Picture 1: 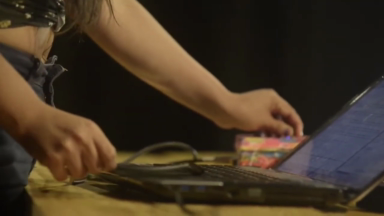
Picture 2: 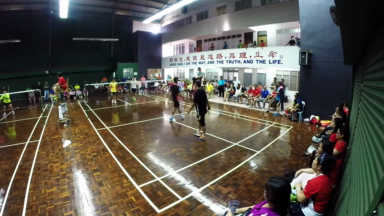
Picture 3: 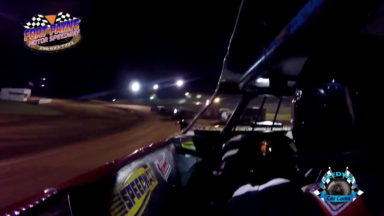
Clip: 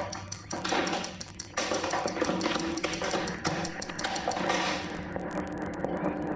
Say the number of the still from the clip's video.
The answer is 1